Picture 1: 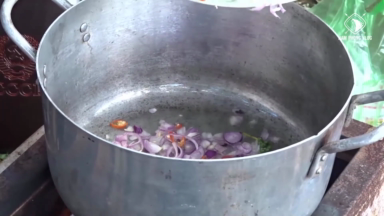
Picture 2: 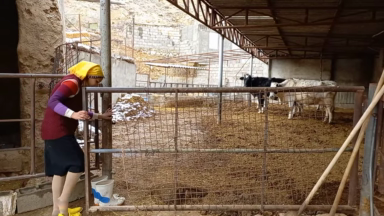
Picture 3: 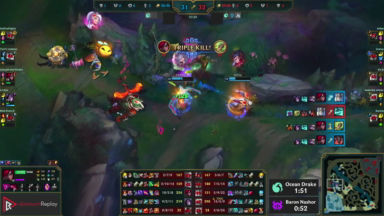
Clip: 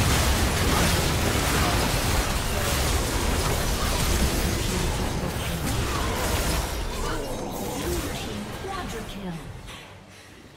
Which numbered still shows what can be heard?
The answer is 3